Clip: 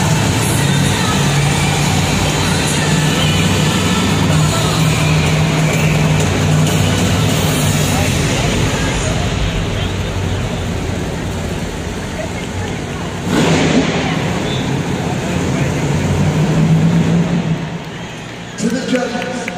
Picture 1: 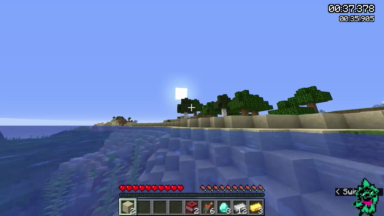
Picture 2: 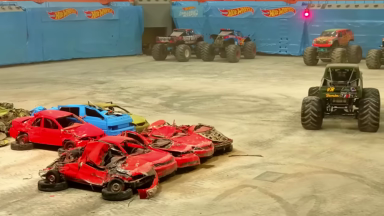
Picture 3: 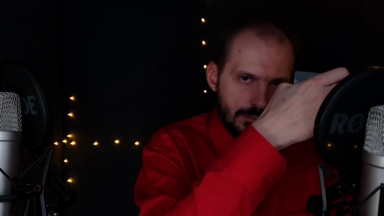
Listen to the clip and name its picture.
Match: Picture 2